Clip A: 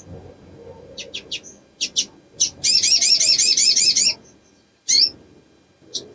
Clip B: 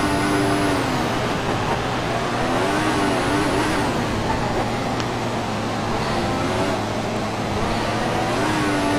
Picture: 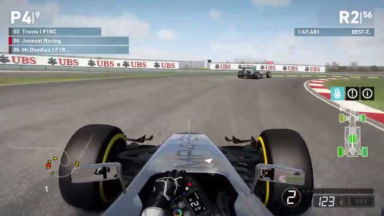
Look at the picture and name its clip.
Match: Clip B